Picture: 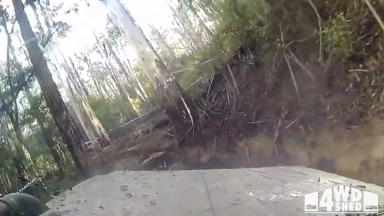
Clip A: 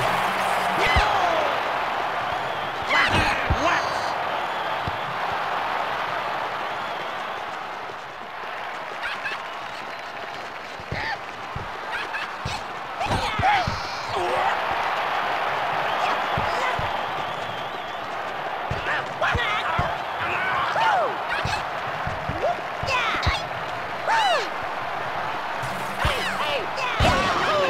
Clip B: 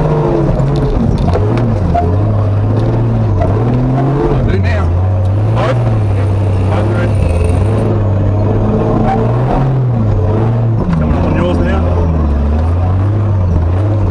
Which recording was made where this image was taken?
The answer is B